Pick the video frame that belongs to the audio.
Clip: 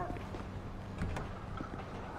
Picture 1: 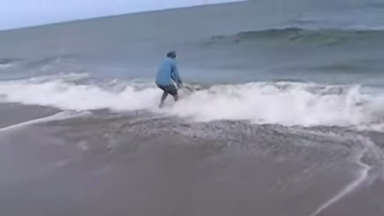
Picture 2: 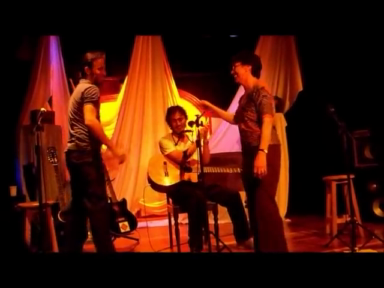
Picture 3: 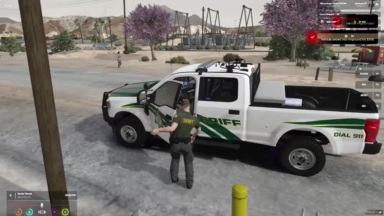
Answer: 3